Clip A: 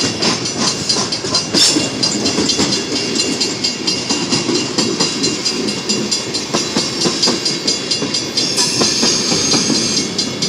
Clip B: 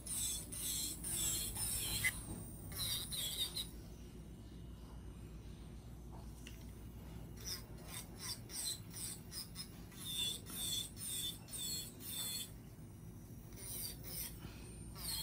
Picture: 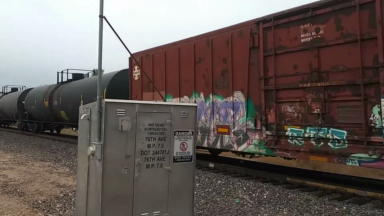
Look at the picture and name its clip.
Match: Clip A